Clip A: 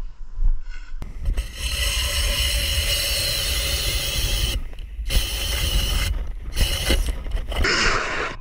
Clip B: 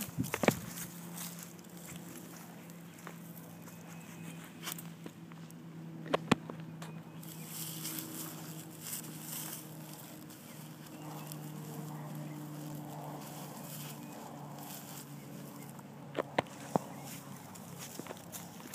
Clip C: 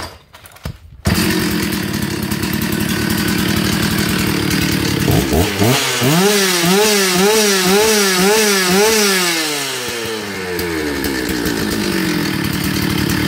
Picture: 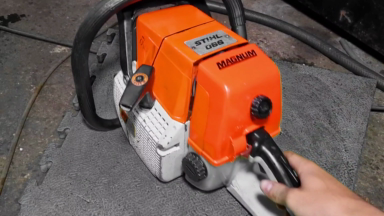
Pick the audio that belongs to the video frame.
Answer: C